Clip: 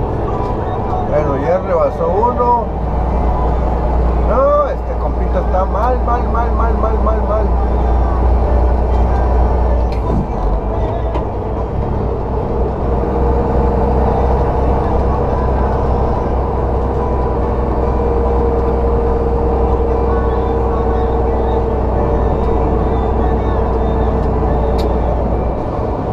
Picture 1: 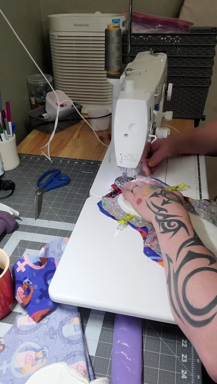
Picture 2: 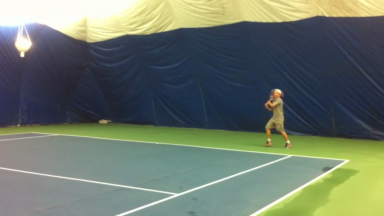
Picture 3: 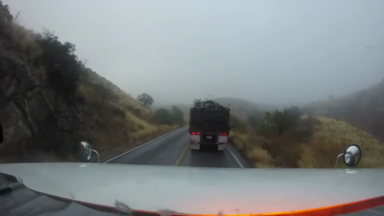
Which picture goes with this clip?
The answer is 3